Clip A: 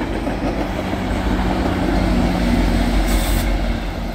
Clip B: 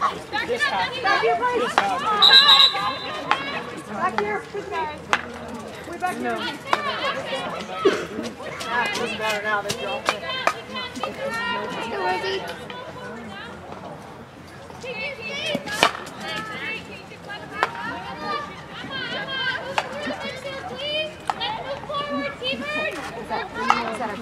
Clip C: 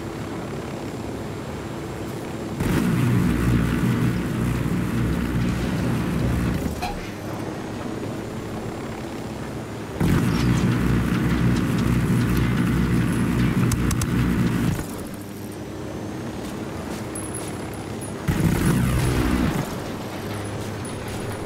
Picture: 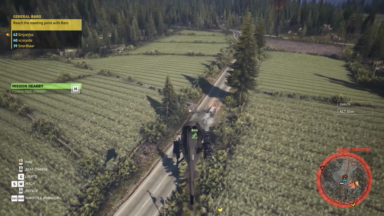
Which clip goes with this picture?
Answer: C